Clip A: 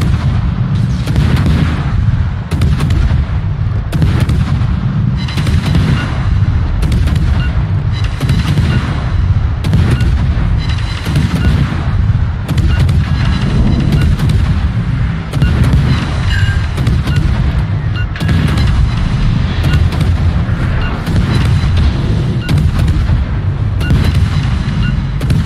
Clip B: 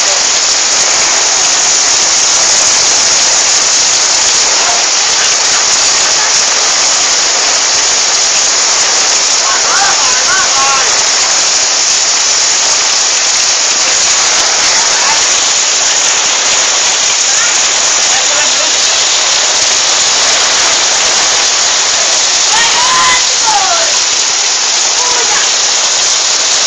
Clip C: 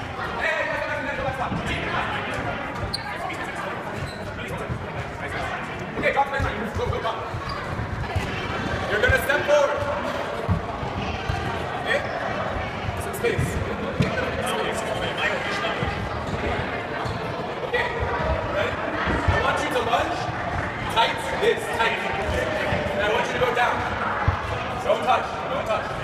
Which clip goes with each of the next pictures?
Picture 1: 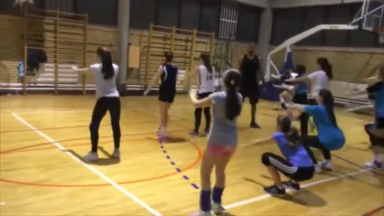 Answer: C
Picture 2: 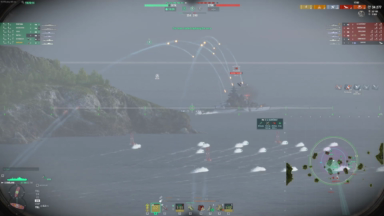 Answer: A